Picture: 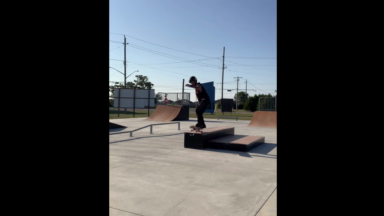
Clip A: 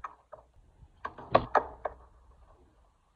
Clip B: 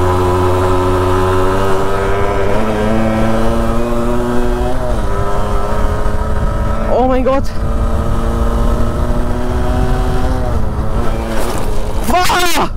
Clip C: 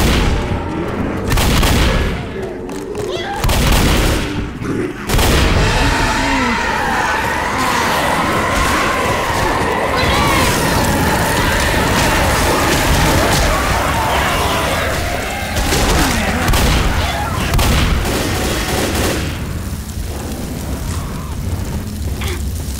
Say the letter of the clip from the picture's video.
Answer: A